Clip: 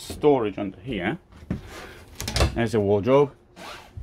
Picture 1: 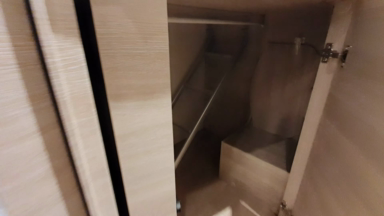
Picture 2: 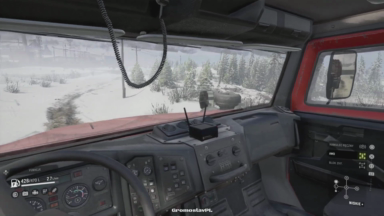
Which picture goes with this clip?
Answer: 1